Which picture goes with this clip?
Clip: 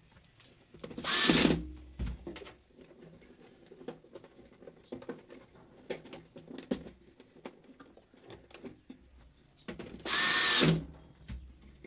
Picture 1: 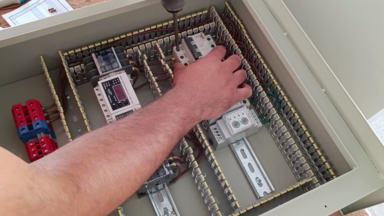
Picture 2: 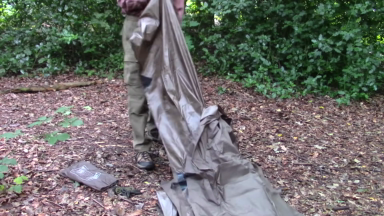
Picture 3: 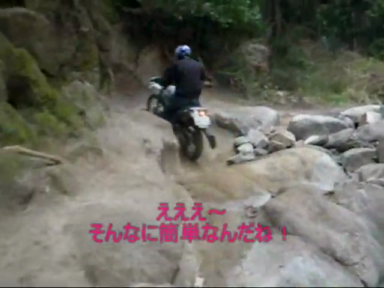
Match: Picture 1